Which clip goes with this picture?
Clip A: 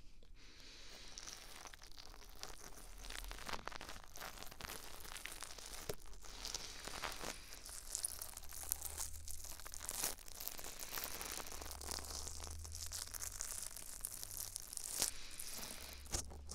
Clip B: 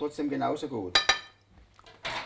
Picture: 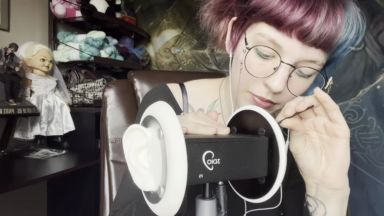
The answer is A